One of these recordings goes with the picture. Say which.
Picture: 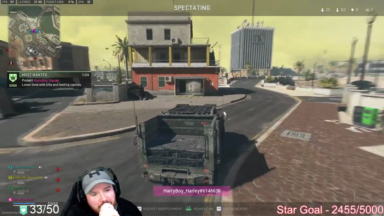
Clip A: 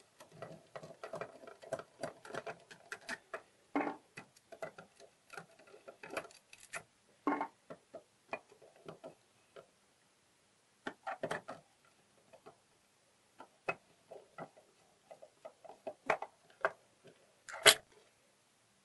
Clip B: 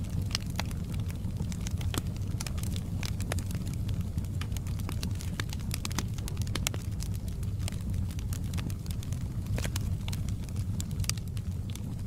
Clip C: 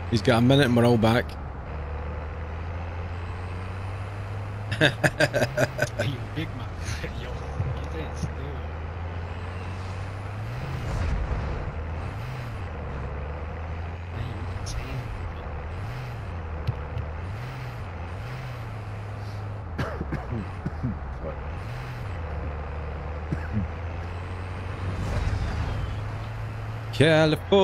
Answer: C